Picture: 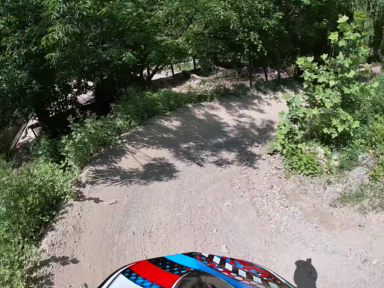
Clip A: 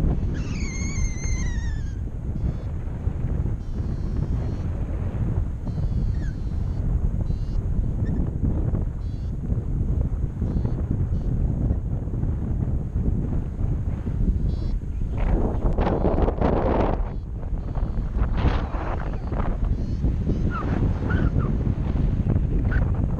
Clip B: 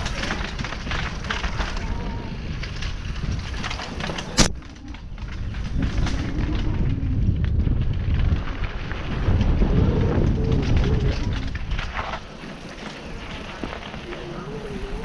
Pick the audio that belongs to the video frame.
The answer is B